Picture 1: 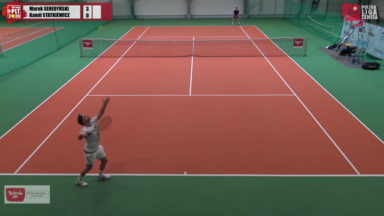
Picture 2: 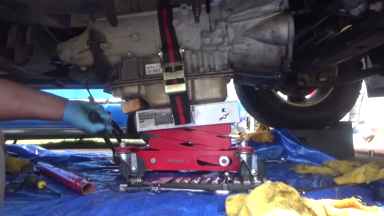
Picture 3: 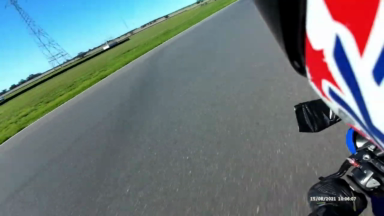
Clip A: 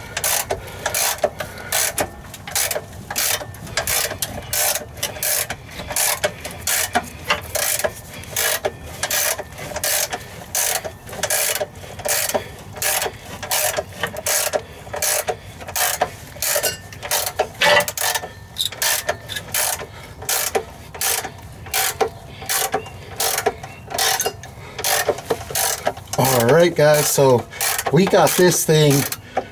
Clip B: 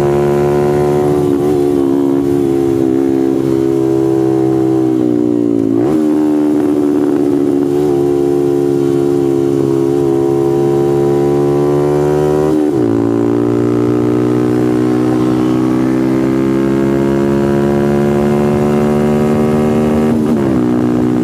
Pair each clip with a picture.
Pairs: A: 2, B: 3